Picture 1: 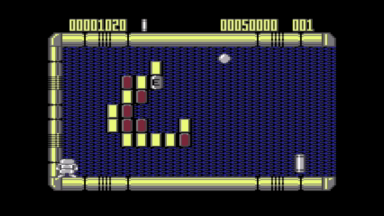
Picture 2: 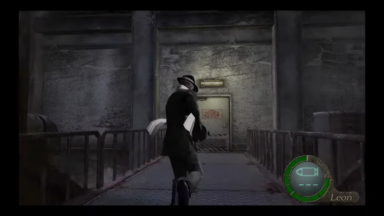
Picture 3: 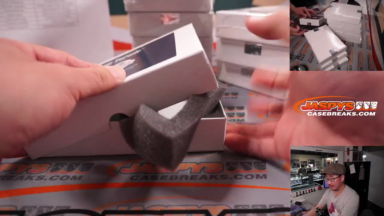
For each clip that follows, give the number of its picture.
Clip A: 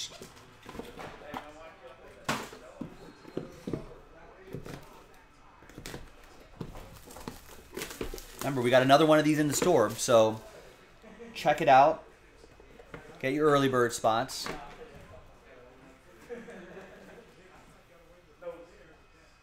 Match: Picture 3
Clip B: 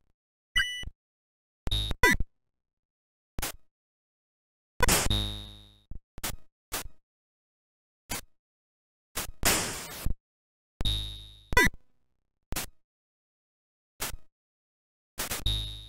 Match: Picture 1